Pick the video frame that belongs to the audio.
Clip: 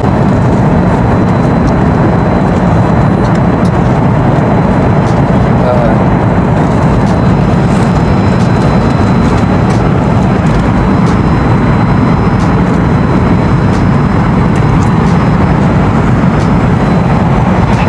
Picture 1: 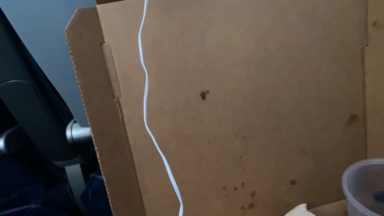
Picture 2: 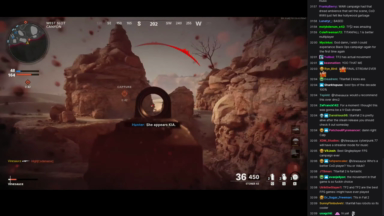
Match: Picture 1